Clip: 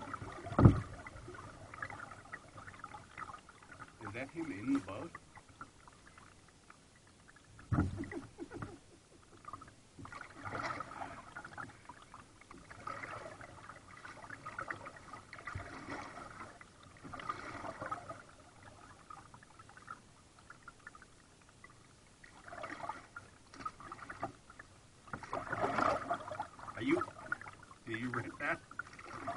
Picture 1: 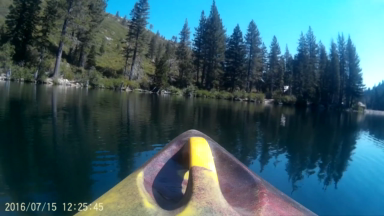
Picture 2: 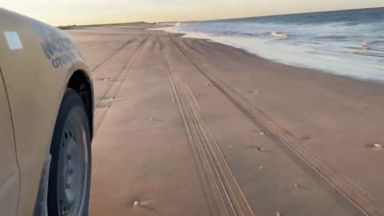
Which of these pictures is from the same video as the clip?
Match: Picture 1